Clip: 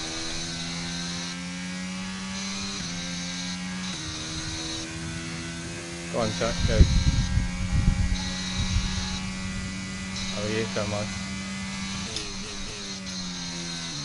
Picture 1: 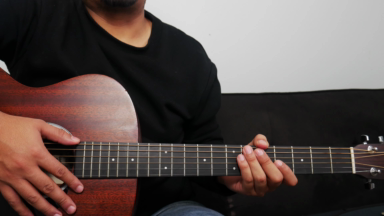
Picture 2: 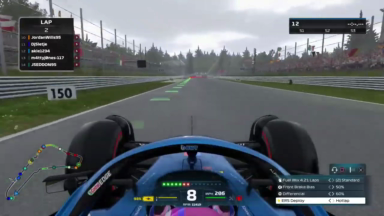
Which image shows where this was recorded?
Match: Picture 2